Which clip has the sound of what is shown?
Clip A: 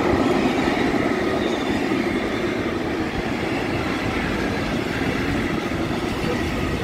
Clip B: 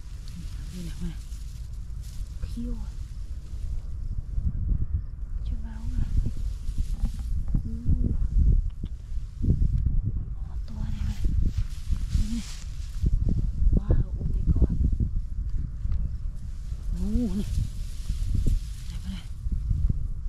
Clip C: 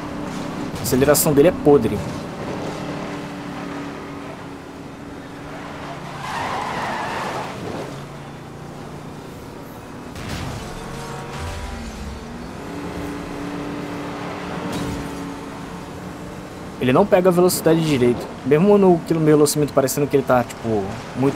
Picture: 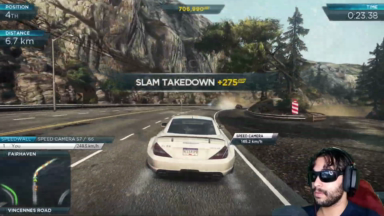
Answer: C